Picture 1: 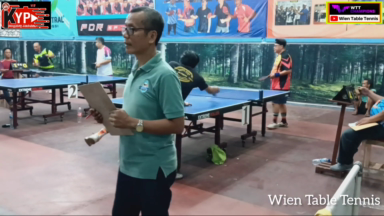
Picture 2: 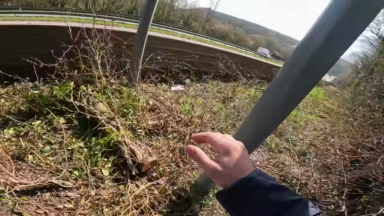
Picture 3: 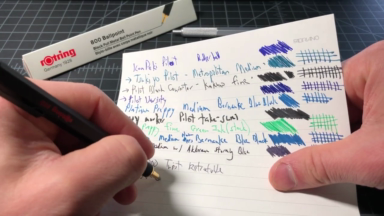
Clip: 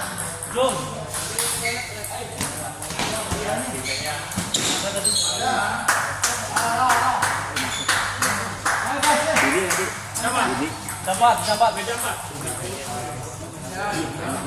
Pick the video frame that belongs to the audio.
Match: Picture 1